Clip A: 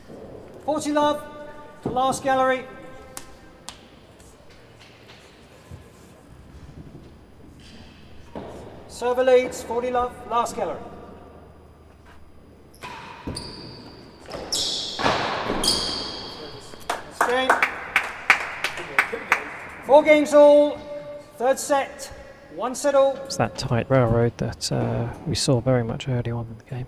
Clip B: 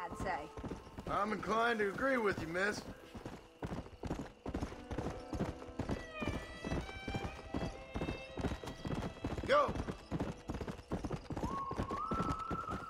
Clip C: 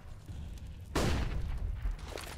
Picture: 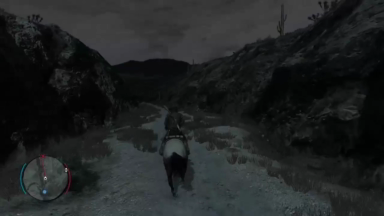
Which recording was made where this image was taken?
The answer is B